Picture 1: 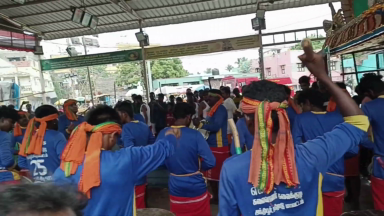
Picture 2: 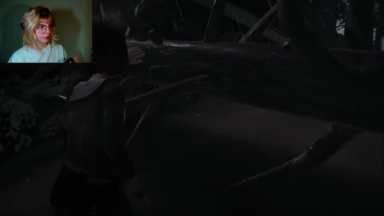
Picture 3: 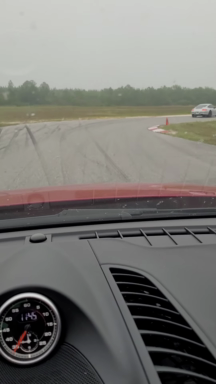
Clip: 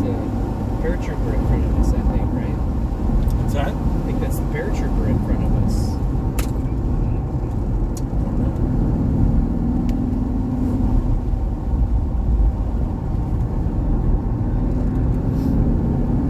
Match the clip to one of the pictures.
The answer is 3